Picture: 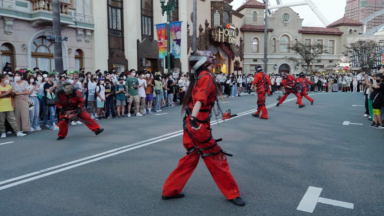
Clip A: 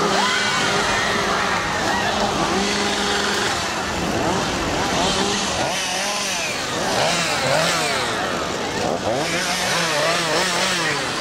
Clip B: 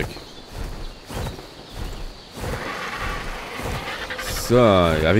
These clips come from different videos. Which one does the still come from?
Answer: A